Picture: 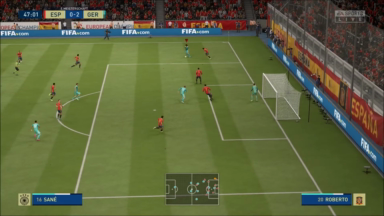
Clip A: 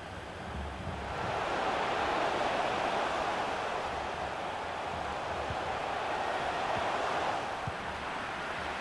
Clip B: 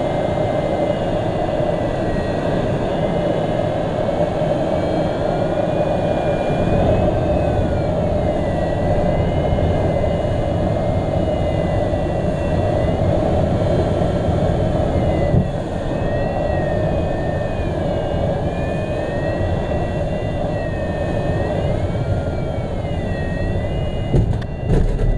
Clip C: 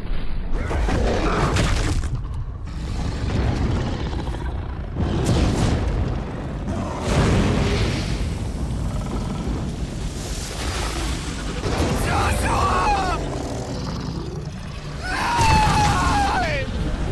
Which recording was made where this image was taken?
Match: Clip A